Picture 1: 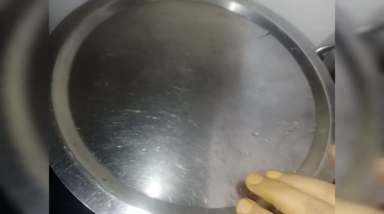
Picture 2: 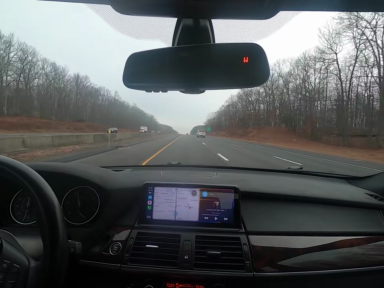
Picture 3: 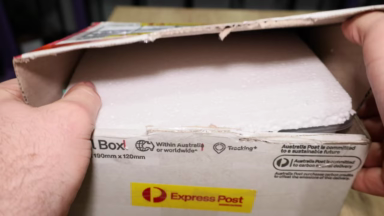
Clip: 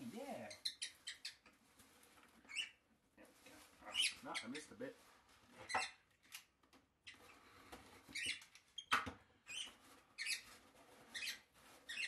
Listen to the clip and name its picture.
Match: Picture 3